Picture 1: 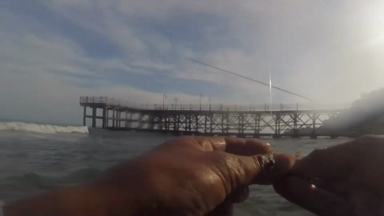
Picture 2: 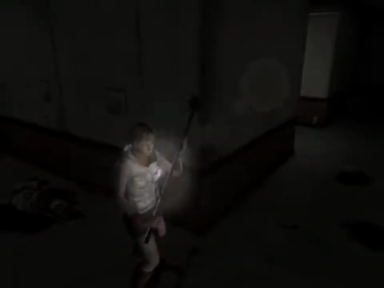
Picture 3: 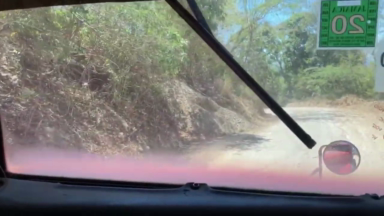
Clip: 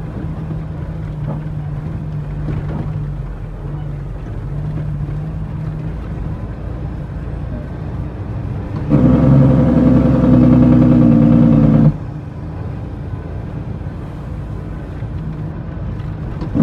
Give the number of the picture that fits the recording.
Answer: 3